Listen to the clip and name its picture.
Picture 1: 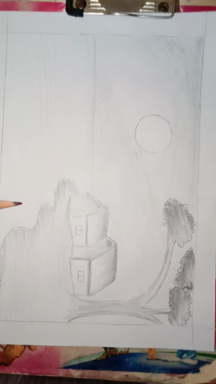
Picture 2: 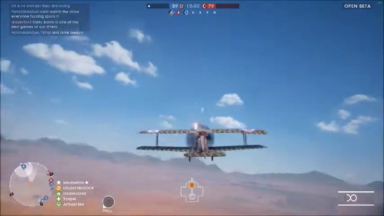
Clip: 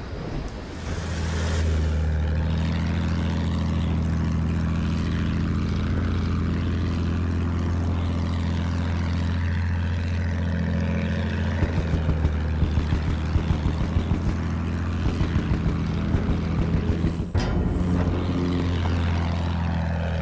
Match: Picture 2